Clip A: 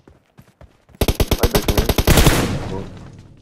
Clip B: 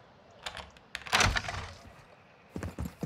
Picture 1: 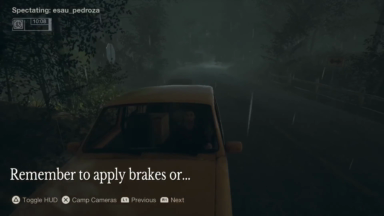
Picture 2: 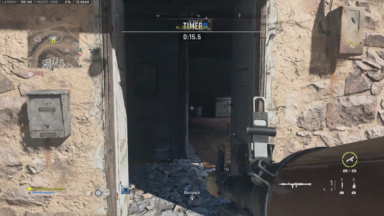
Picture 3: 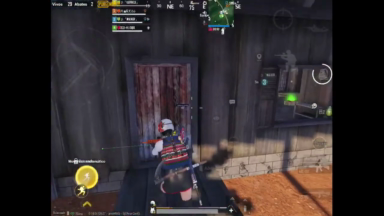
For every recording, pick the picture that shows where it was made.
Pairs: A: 3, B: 2